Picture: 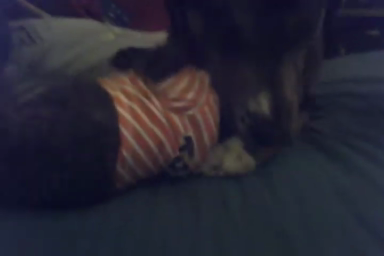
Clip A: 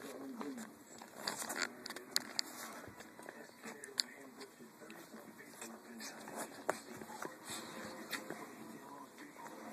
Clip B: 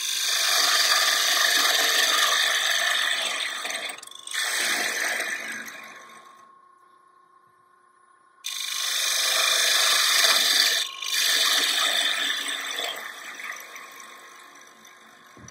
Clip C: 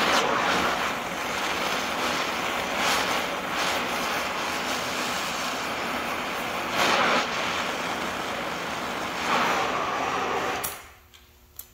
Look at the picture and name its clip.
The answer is A